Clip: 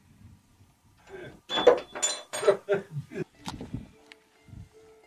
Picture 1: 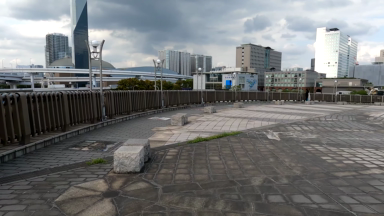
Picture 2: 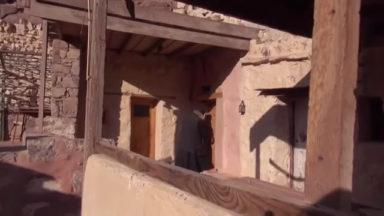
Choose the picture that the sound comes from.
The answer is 2